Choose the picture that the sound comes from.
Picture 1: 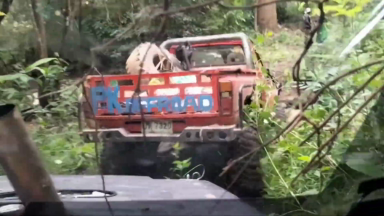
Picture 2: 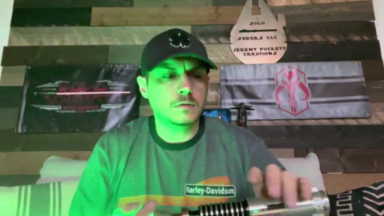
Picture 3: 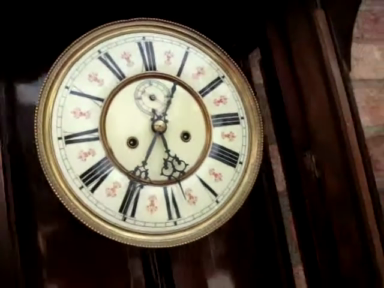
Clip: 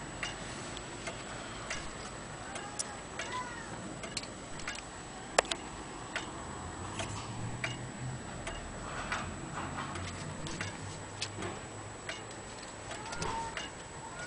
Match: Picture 3